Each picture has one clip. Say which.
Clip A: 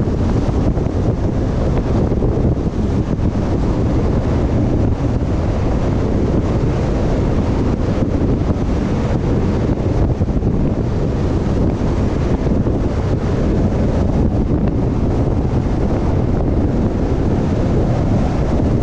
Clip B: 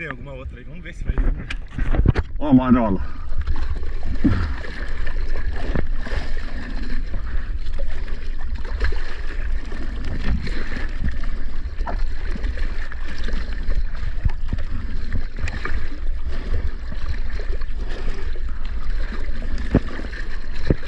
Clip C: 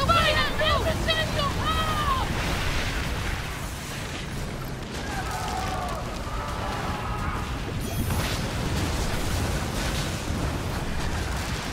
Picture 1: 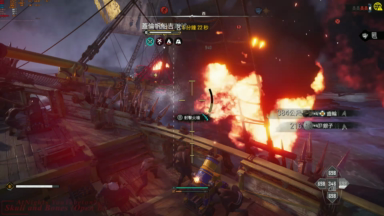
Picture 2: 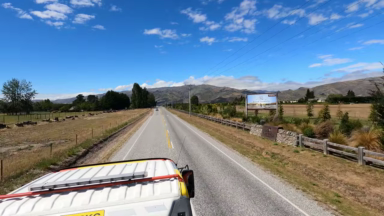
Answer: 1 C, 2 A